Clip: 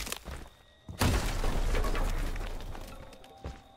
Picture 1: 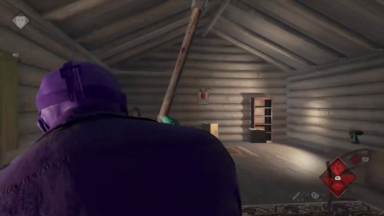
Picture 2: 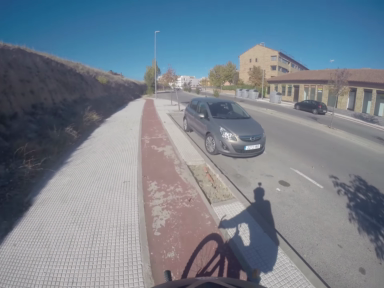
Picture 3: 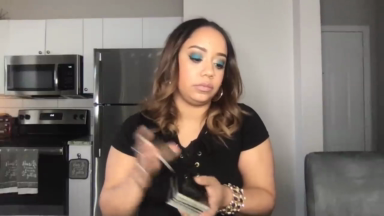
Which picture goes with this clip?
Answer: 1